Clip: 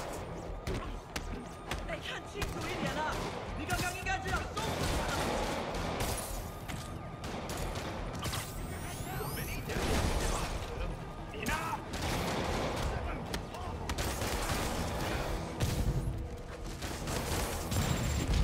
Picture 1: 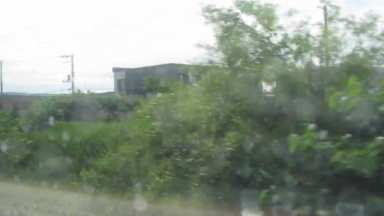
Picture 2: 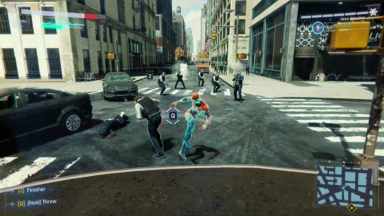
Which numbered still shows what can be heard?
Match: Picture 2